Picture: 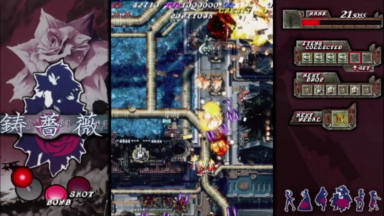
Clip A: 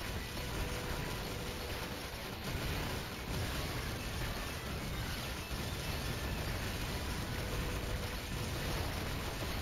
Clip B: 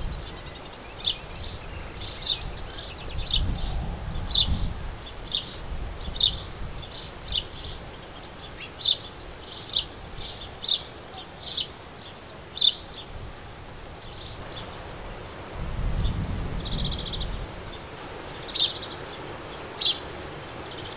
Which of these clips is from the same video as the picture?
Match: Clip A